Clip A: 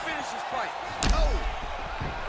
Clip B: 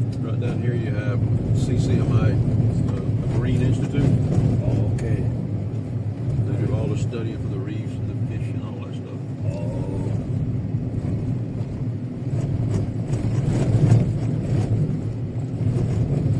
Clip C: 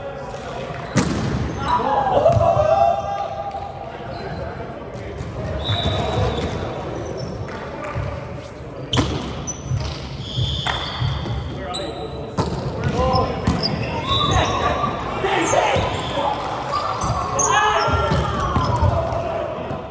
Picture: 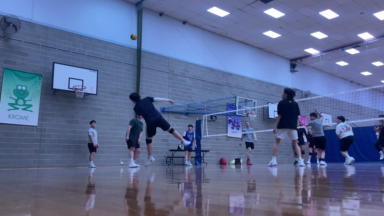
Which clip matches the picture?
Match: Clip C